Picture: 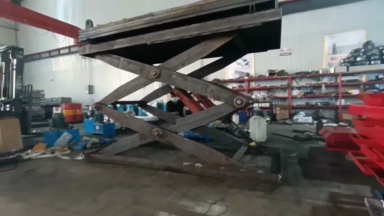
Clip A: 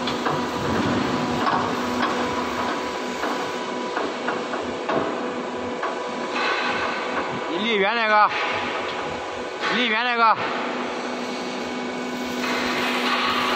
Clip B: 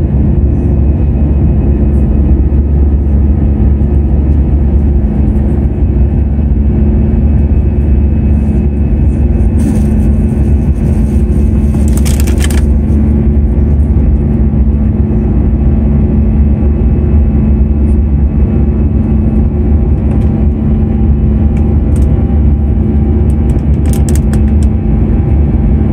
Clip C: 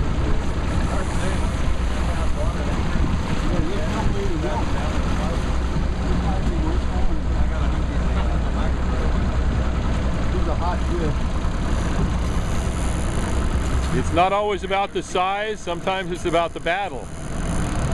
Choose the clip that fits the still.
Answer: A